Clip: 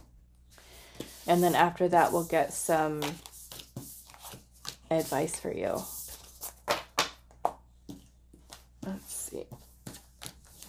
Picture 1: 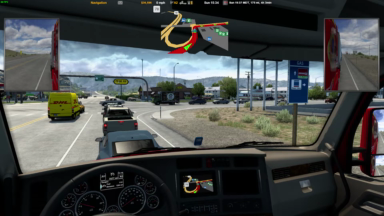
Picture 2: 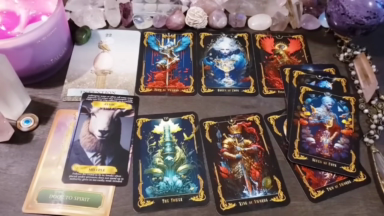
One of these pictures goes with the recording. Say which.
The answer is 2